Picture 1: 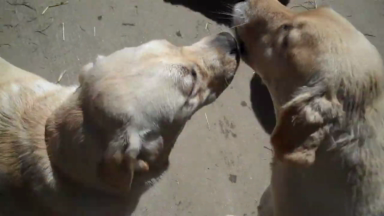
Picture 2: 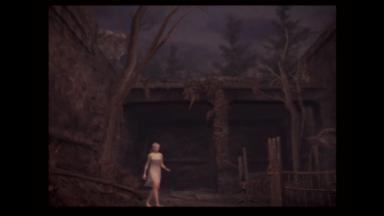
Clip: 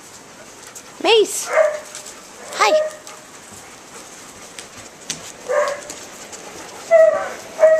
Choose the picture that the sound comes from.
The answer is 1